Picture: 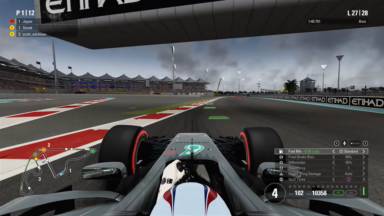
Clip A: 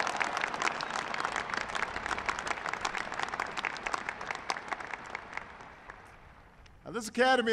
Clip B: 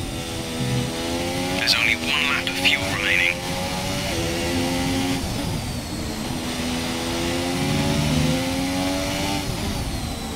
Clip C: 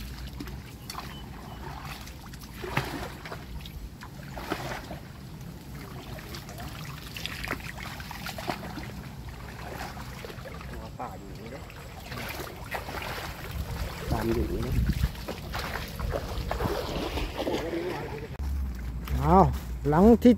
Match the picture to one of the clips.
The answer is B